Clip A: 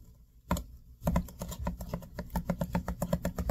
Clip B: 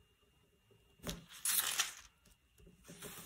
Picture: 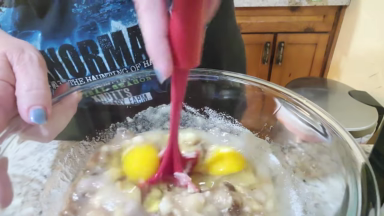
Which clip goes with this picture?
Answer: A